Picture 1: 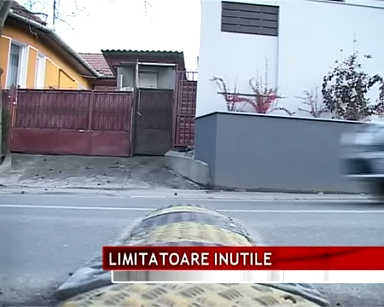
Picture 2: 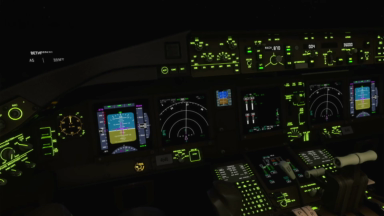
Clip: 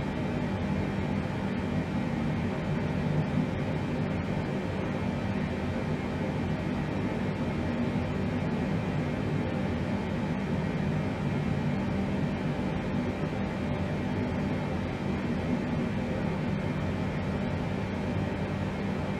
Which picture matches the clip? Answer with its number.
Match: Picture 2